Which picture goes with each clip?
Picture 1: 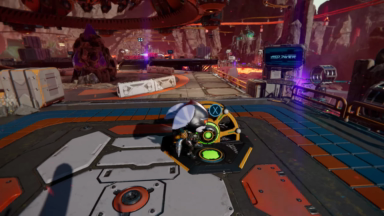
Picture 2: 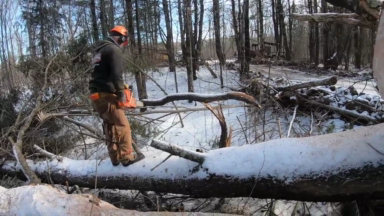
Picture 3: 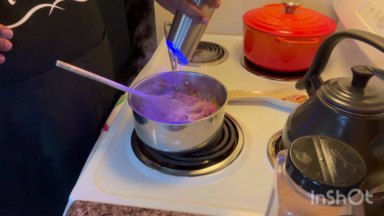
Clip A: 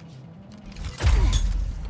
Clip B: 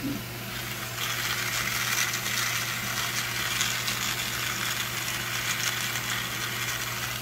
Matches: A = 1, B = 3